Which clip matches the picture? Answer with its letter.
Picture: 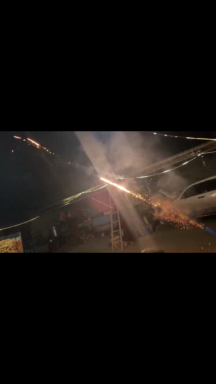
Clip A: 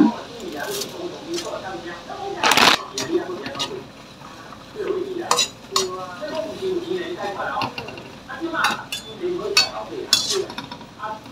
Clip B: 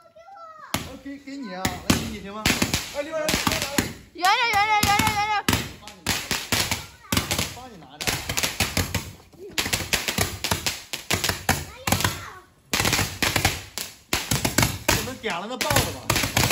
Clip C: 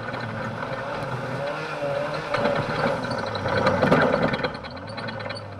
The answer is B